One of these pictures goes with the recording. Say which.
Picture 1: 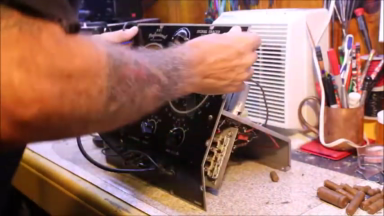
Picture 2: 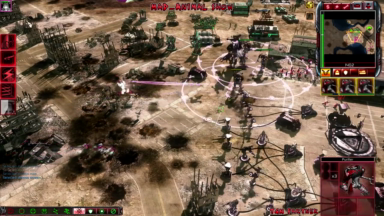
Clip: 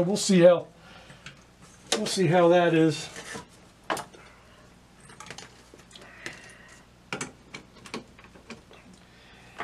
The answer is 1